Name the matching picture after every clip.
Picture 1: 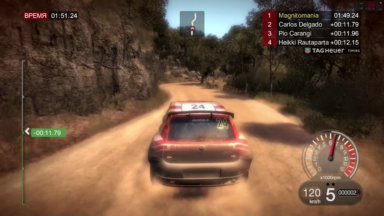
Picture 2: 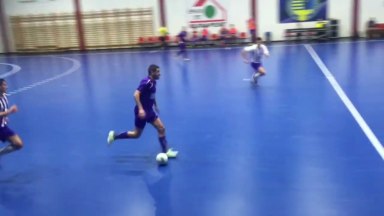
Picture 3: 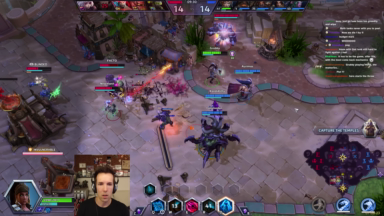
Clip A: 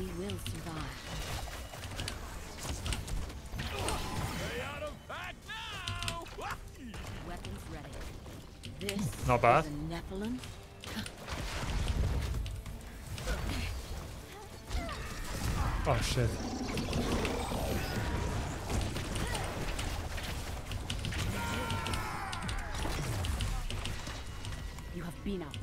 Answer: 3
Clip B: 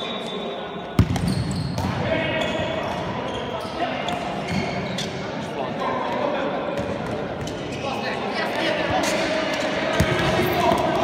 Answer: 2